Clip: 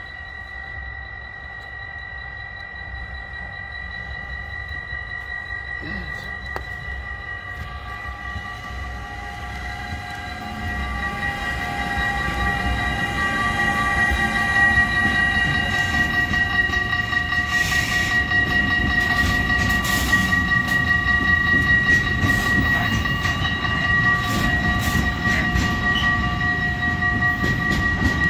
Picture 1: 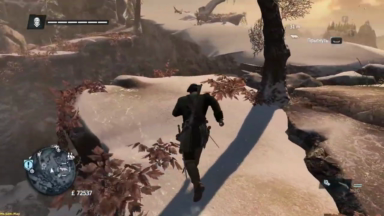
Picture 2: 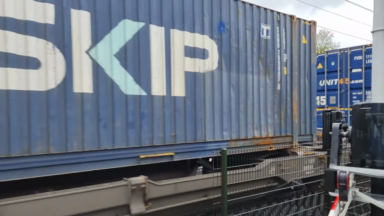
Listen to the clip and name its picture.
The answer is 2